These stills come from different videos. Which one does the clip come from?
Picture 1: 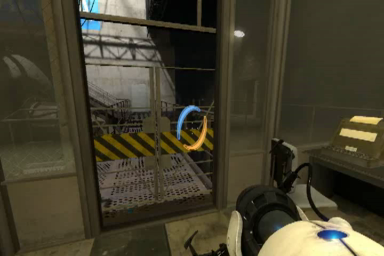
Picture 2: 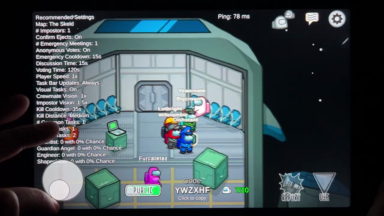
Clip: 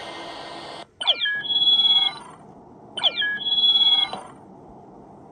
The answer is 2